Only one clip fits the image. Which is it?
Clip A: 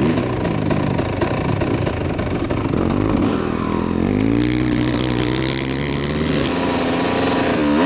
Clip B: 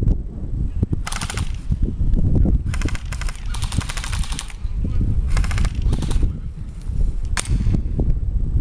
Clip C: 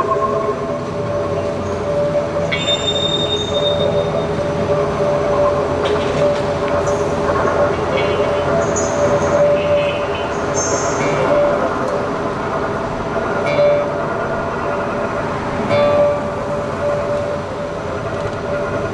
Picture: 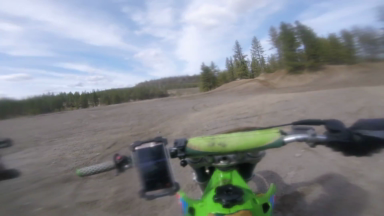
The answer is A